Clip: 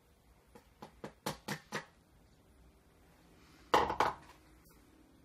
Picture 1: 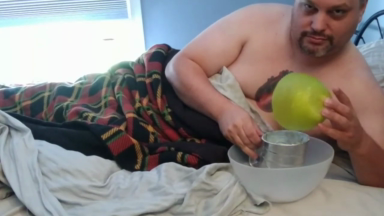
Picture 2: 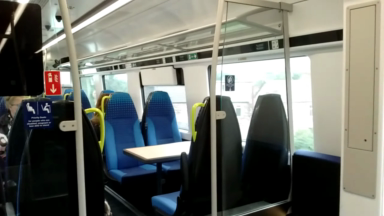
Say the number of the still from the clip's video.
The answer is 1